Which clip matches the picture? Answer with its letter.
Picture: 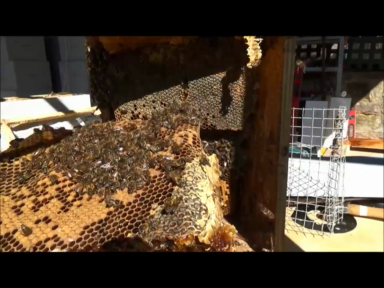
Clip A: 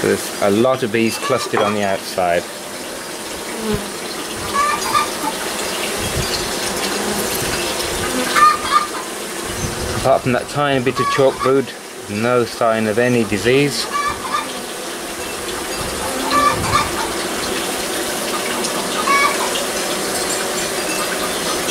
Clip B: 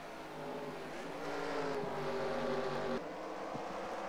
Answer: A